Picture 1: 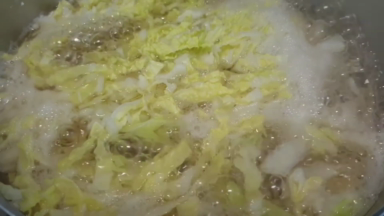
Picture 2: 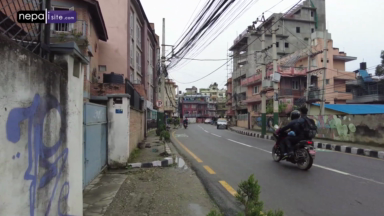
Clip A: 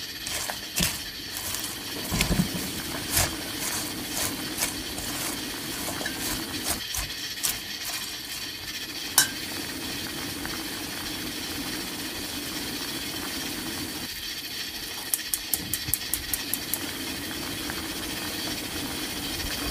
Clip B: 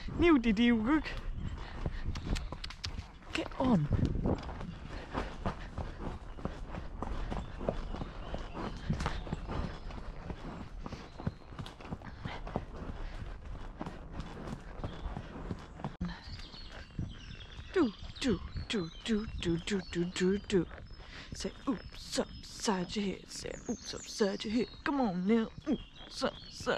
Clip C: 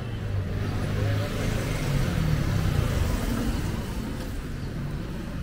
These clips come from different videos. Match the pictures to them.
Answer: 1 A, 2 C